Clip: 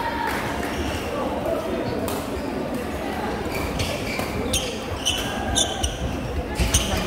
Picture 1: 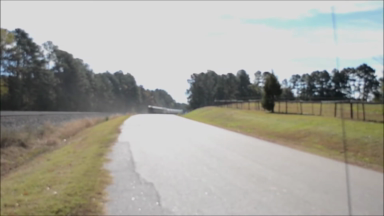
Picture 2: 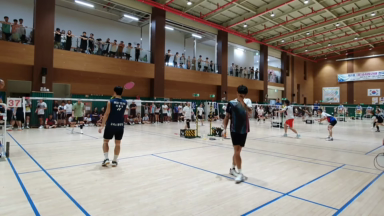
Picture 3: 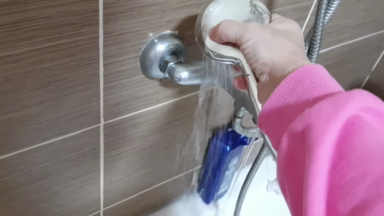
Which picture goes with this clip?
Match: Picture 2